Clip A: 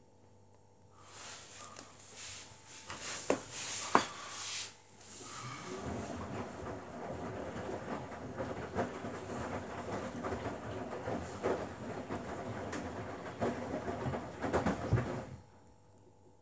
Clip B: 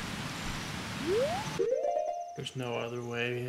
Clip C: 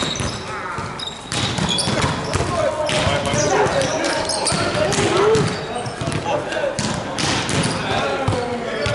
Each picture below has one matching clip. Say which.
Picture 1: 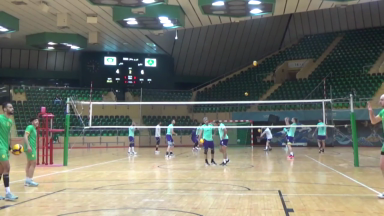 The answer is C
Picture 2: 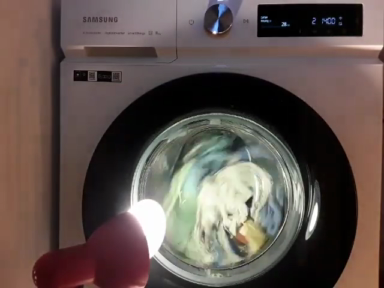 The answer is A